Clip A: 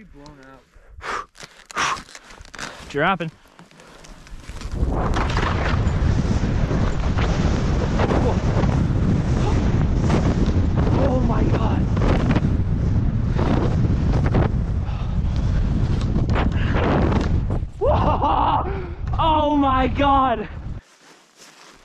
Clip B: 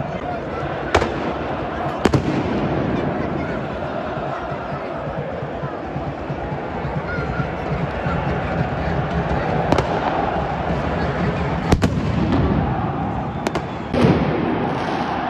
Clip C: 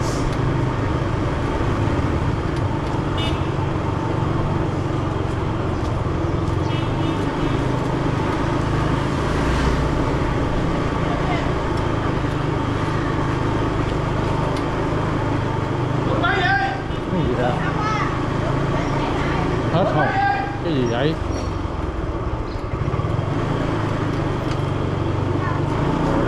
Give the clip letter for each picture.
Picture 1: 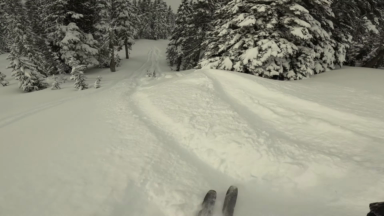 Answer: A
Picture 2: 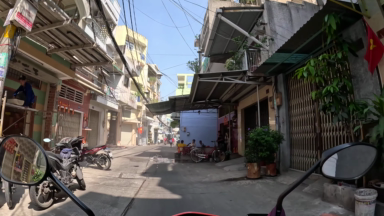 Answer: C